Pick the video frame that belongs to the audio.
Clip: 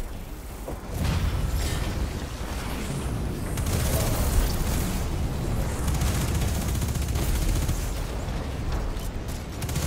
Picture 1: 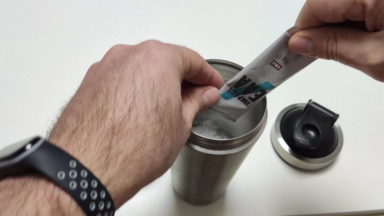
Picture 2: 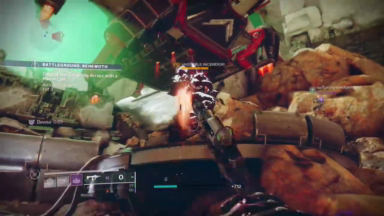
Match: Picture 2